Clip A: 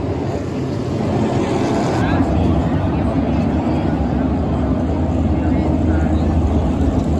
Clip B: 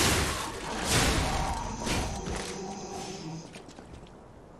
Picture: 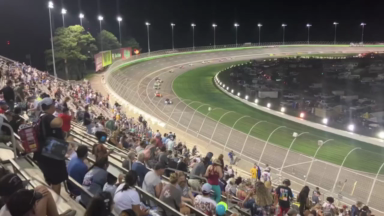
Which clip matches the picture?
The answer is A